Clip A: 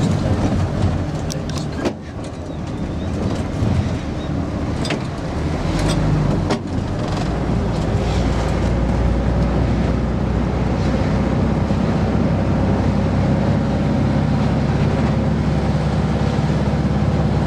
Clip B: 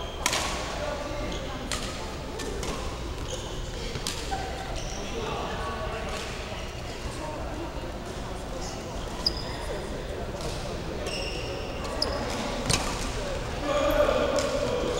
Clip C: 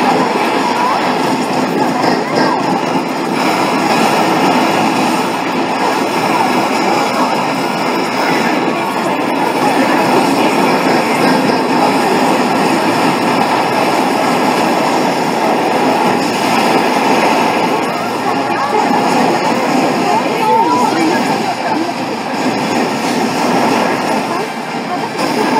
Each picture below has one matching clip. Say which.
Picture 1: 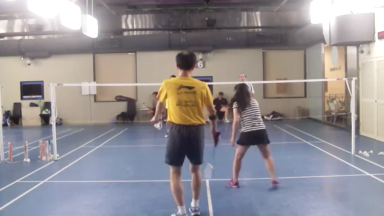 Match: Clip B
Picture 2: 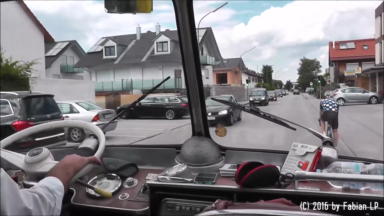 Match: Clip A